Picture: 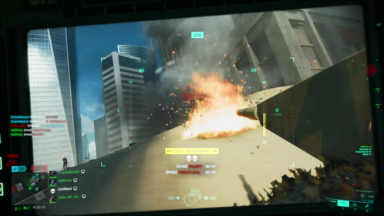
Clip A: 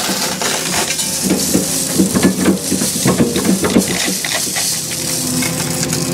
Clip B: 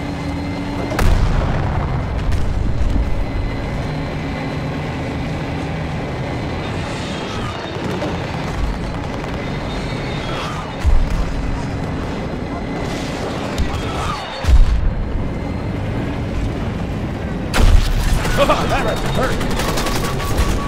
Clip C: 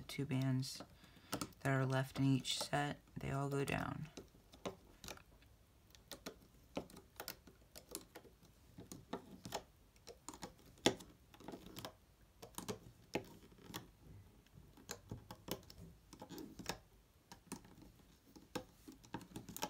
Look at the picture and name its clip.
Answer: B